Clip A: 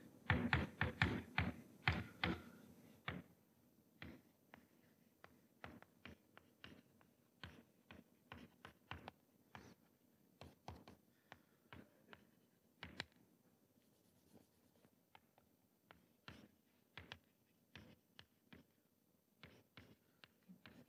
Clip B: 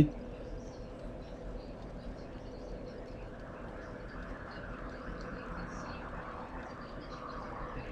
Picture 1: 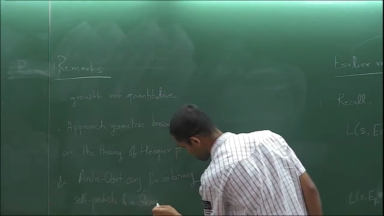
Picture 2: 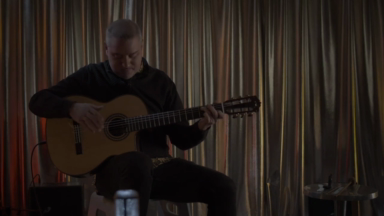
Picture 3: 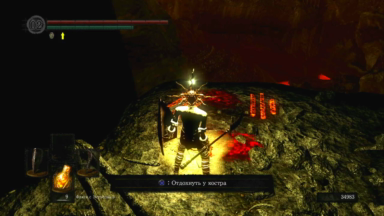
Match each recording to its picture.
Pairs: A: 1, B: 3